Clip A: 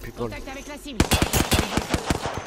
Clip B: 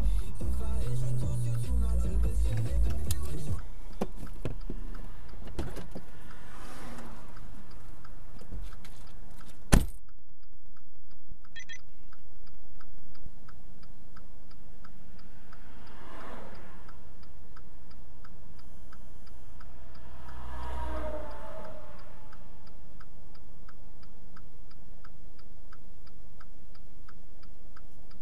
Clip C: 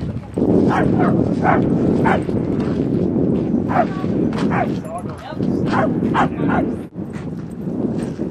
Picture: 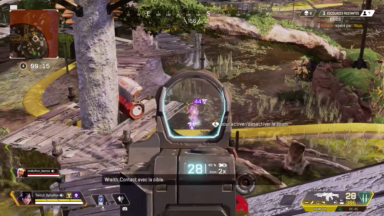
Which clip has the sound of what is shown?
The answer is A